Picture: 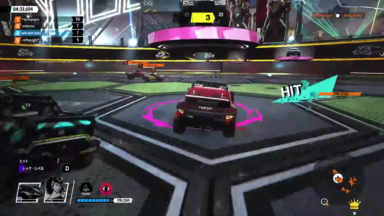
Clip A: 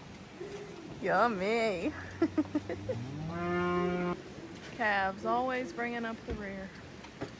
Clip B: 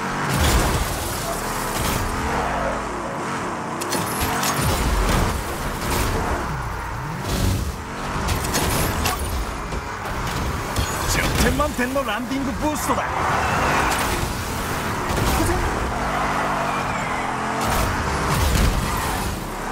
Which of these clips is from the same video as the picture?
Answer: B